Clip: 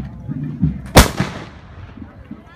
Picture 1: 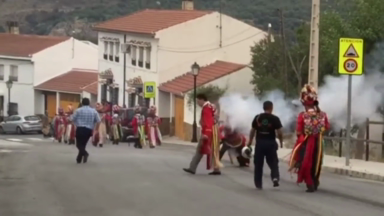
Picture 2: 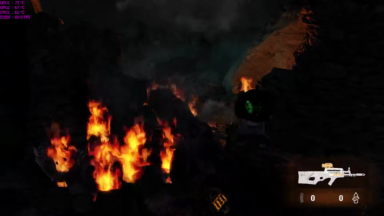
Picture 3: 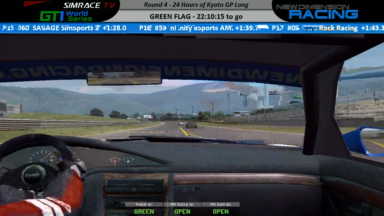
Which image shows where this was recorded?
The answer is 1